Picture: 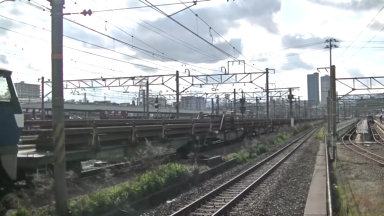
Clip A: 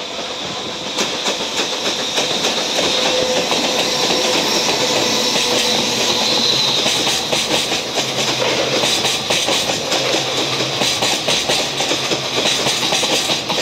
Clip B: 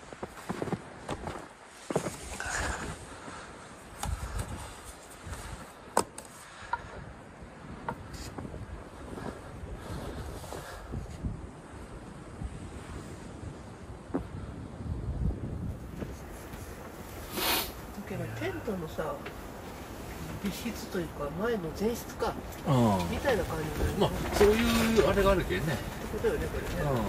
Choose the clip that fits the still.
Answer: A